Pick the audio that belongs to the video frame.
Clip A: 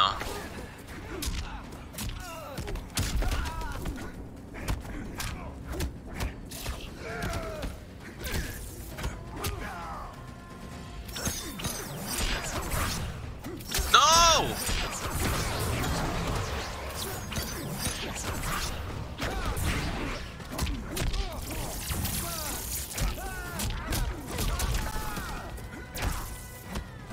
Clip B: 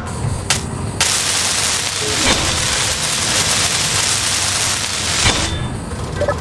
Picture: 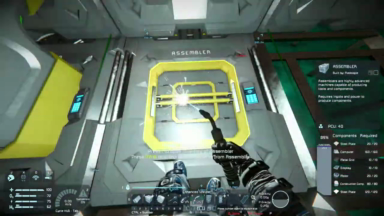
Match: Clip B